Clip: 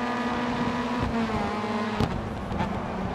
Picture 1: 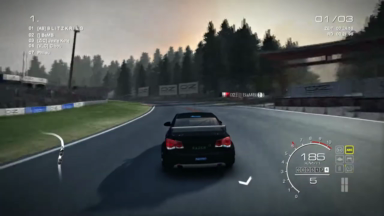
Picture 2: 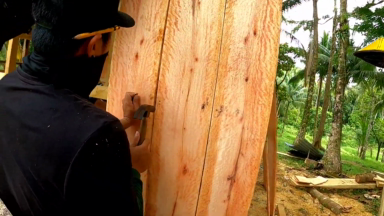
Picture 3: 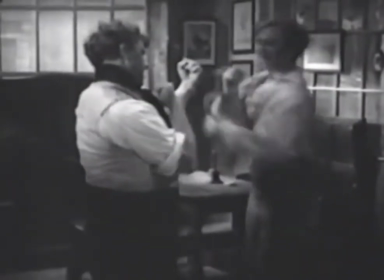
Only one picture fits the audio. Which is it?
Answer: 1